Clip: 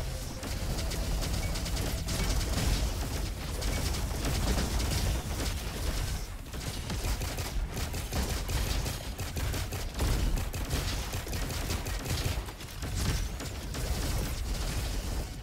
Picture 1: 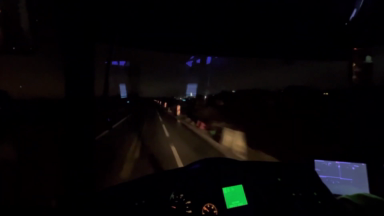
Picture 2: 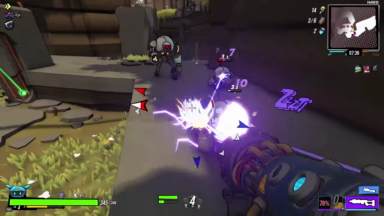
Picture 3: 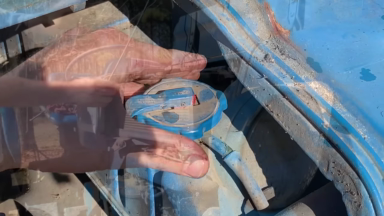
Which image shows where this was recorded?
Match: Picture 2